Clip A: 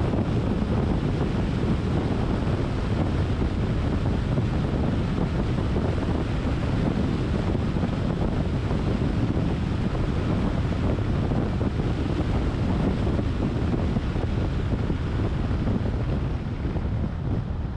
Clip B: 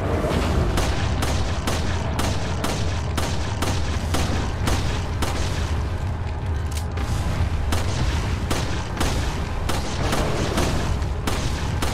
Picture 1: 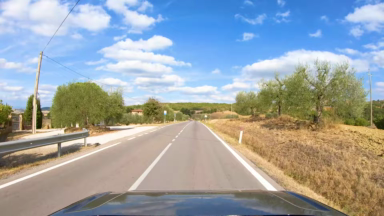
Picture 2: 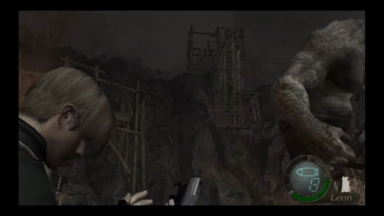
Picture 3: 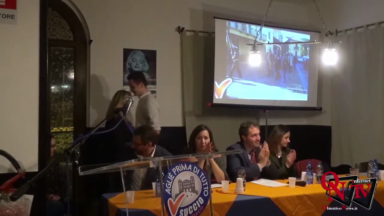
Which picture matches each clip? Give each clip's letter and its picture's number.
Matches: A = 1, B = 2